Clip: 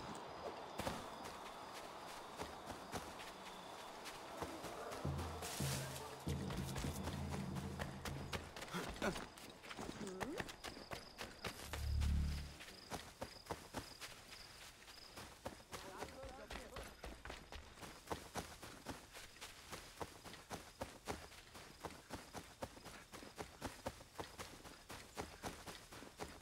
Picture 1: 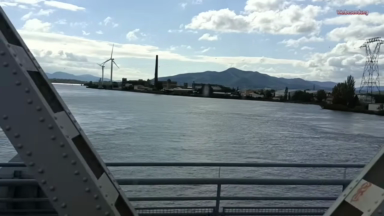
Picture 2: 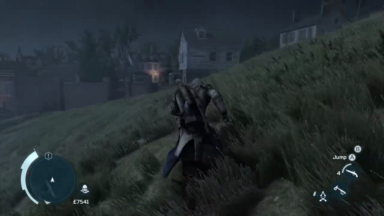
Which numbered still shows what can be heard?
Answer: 2